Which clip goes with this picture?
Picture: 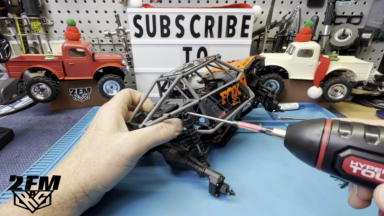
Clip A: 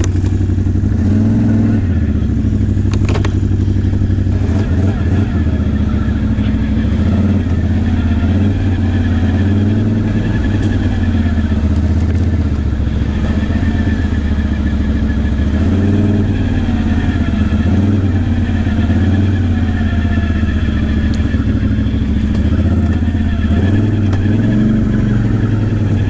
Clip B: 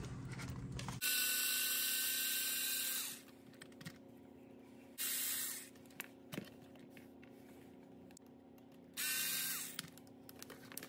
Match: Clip B